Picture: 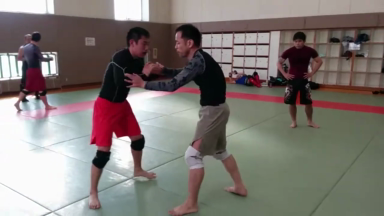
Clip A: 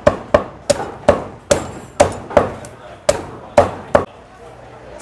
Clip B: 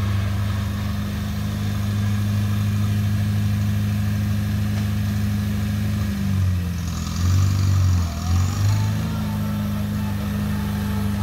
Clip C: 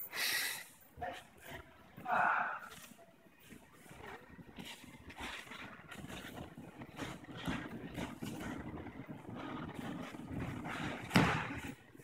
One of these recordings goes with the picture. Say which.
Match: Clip C